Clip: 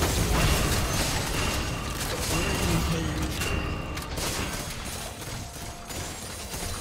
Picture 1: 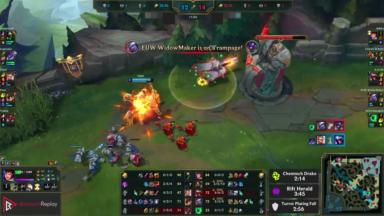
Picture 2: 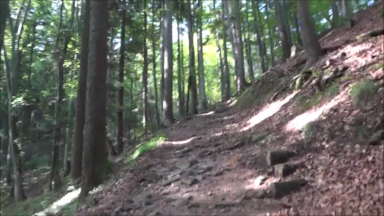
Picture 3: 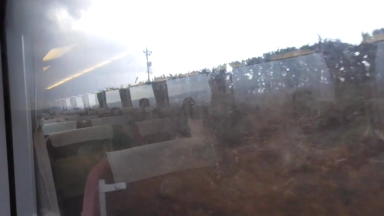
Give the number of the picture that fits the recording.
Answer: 1